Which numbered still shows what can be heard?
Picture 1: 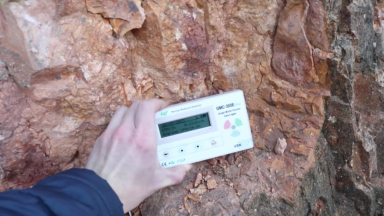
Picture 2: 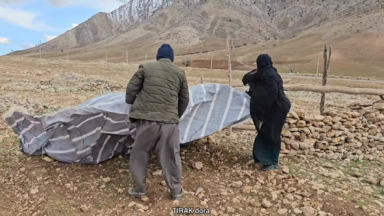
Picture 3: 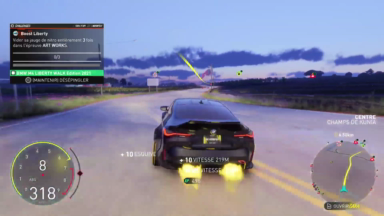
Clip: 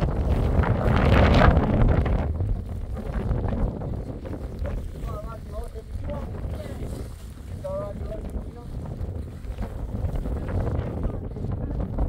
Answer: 2